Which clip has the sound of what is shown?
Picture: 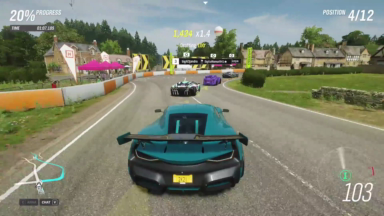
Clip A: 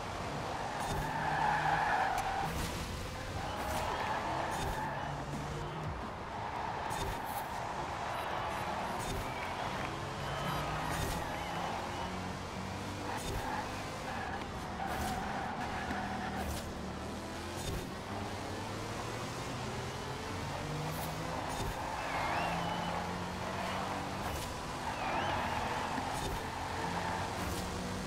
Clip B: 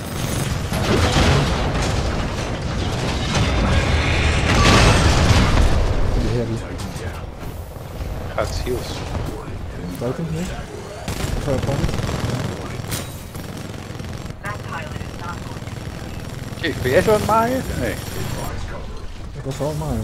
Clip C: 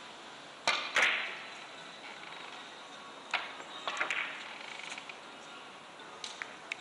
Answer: A